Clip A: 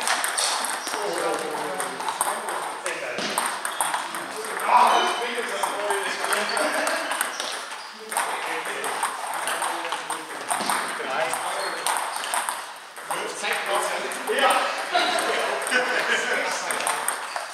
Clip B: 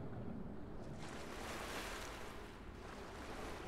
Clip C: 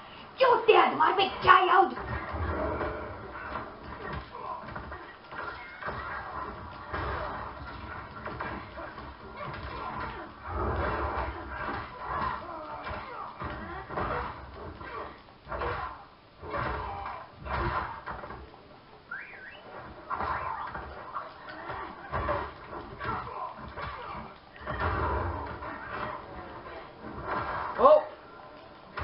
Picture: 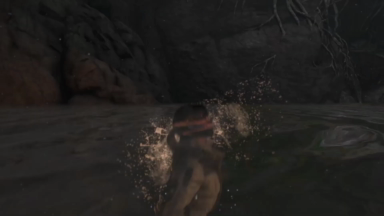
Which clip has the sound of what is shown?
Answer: B